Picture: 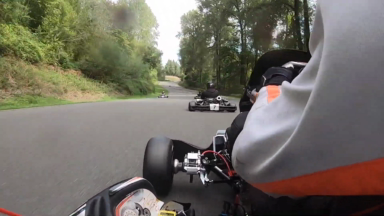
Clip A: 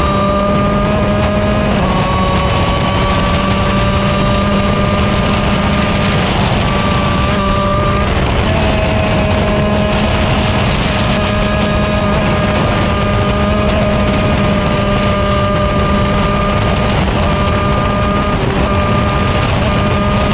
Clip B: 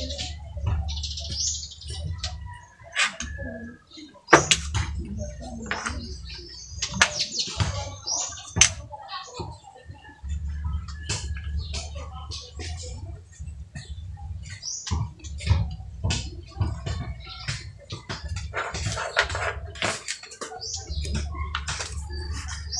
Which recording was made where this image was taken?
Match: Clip A